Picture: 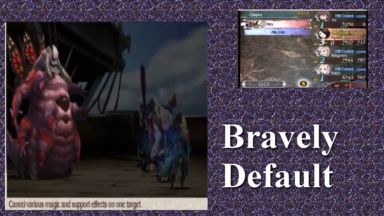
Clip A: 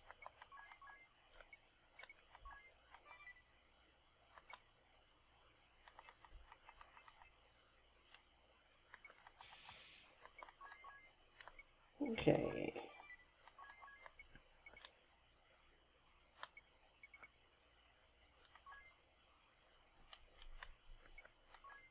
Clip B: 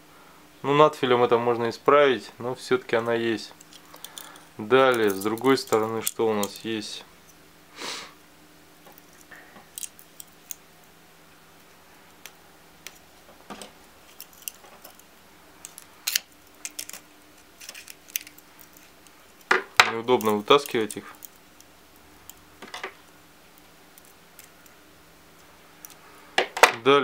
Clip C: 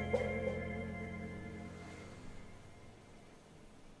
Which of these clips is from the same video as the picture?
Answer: A